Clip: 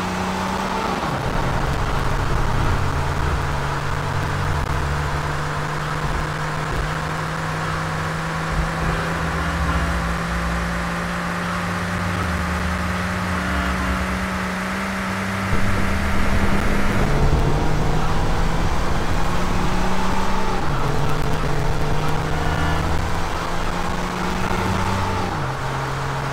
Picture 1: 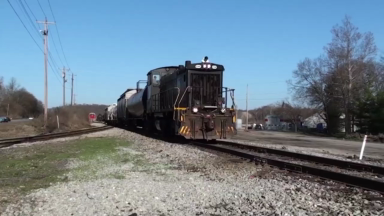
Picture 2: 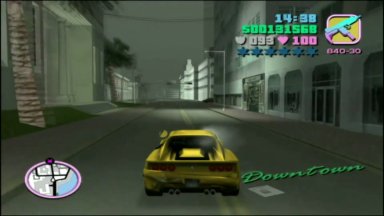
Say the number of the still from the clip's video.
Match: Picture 2